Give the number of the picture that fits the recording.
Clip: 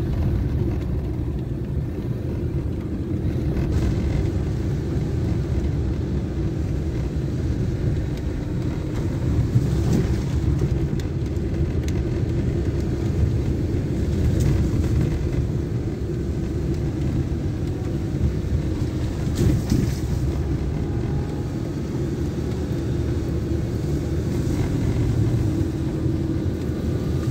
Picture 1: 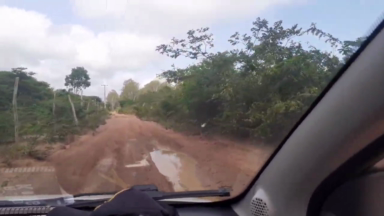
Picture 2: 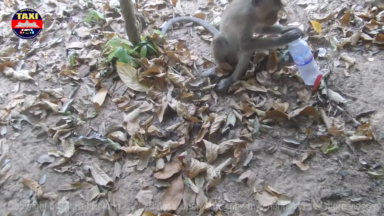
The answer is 1